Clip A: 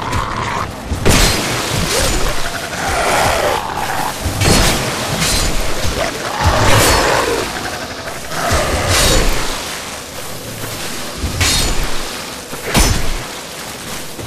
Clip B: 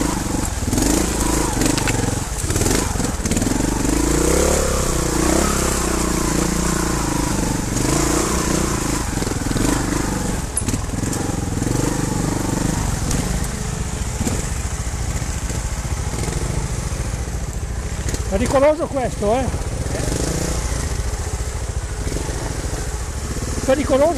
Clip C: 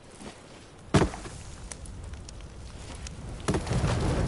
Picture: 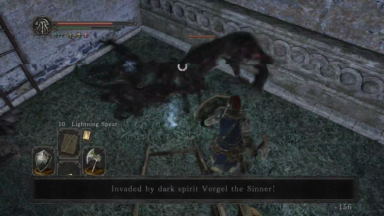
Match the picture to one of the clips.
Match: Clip A